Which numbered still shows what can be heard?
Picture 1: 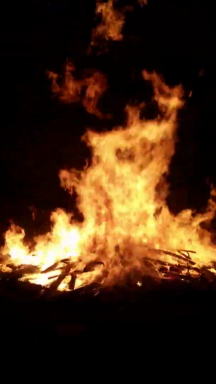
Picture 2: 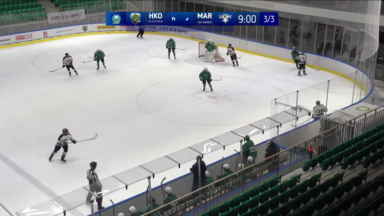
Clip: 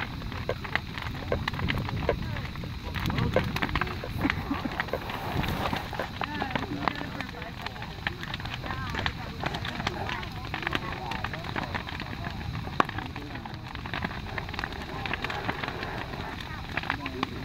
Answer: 1